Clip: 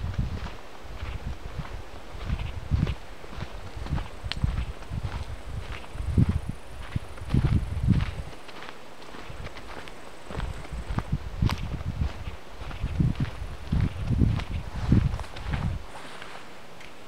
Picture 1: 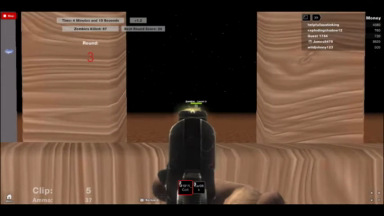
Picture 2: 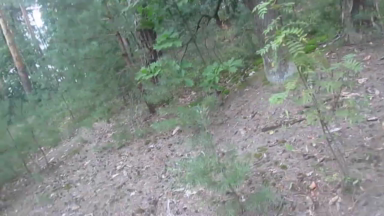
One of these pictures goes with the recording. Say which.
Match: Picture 2